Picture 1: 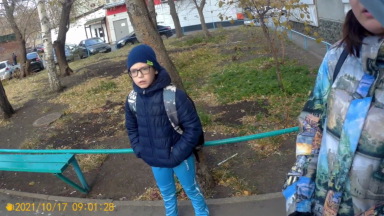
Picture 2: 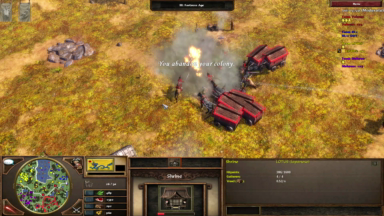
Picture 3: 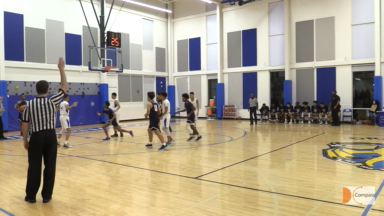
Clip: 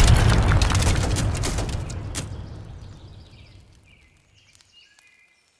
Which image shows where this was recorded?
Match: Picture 2